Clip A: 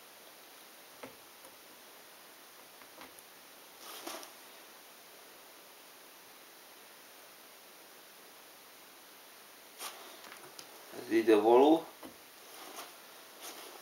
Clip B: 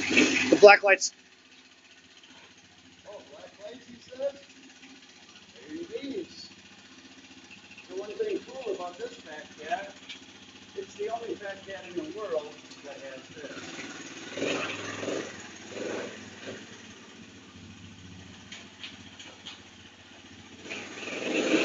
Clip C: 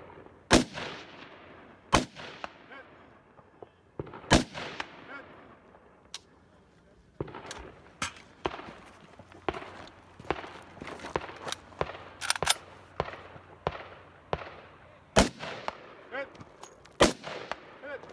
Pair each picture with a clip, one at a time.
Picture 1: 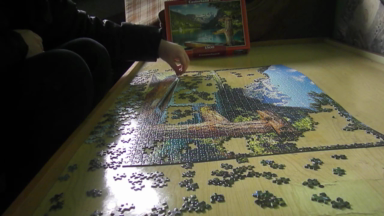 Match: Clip A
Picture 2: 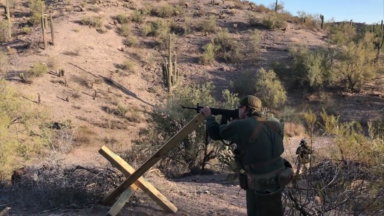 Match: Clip C